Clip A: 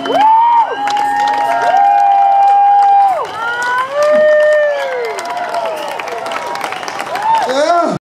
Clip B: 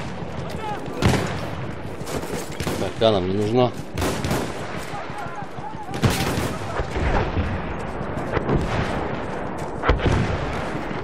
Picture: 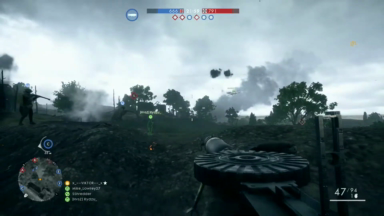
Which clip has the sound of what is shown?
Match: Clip B